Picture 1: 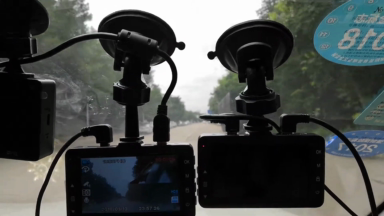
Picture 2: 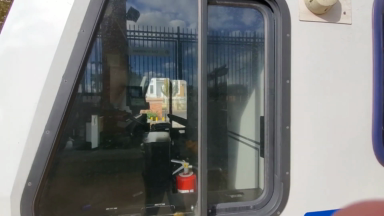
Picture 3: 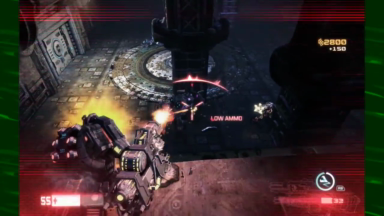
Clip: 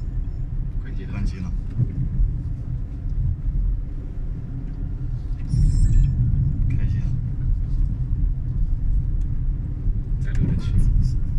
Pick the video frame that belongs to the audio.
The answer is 1